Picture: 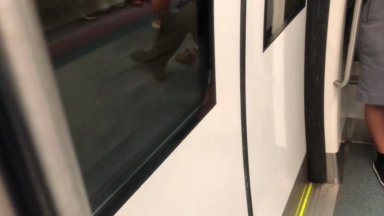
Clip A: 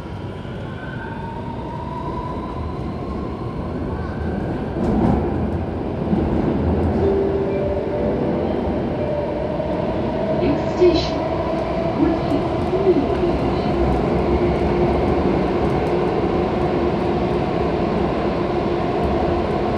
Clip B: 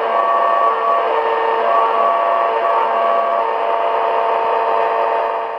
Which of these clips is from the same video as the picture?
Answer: A